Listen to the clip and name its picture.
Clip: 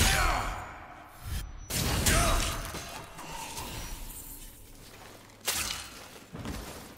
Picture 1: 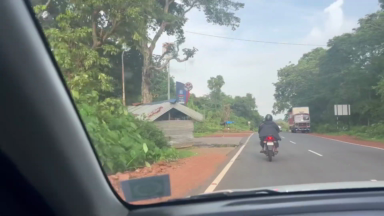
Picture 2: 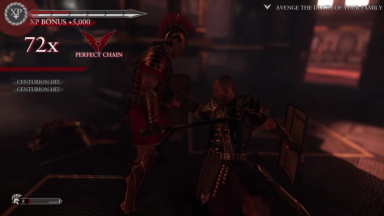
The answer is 2